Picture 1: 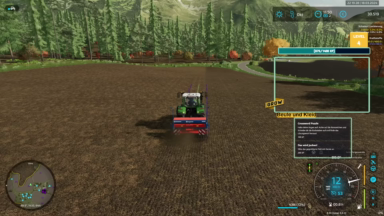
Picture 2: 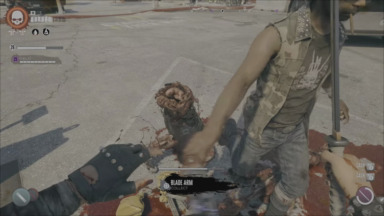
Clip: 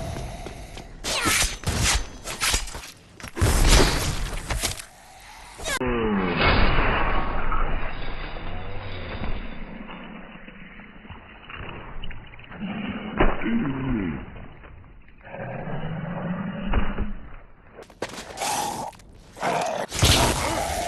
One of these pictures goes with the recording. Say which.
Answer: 2